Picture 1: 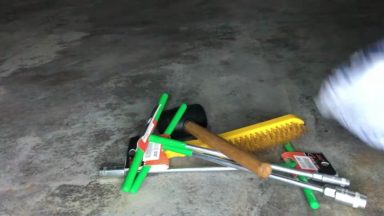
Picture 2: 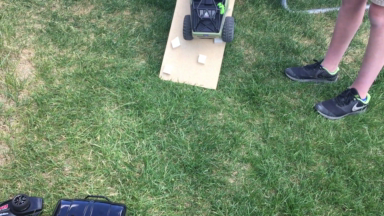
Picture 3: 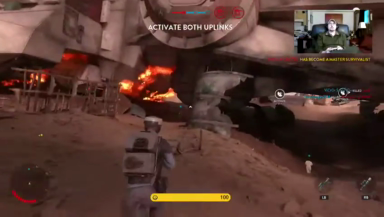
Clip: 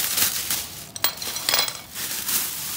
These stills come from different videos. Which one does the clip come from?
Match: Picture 1